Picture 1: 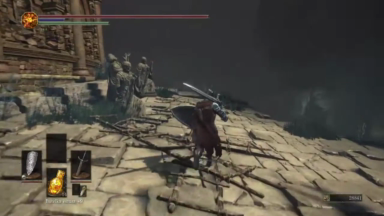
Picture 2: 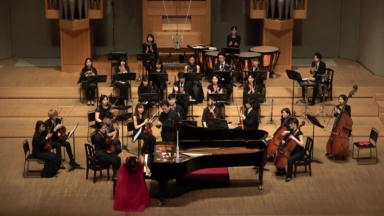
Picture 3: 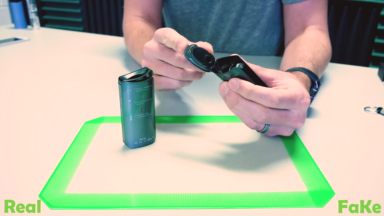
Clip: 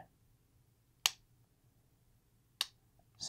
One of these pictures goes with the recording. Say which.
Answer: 3